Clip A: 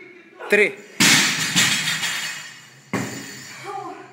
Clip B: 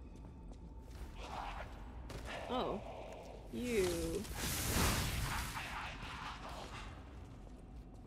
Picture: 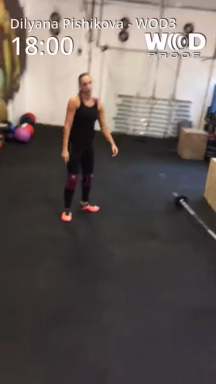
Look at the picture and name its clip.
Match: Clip A